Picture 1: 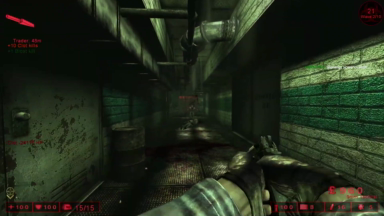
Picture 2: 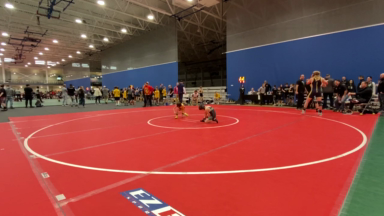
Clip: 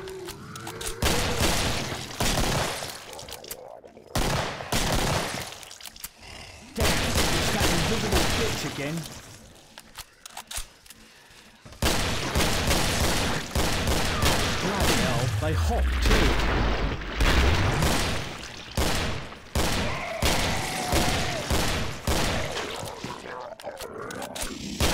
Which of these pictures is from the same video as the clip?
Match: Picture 1